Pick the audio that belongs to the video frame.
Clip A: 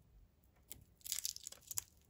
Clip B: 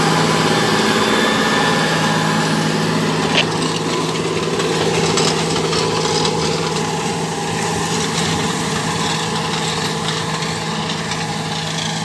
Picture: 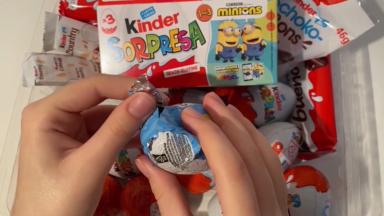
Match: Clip A